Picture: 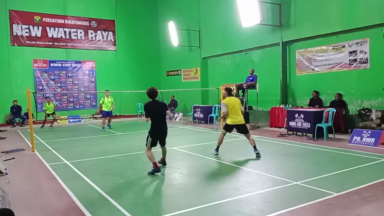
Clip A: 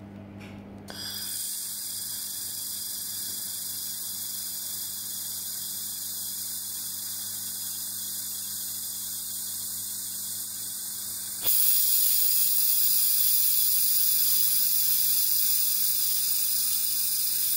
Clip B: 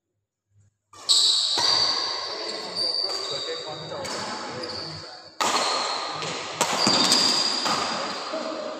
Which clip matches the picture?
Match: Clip B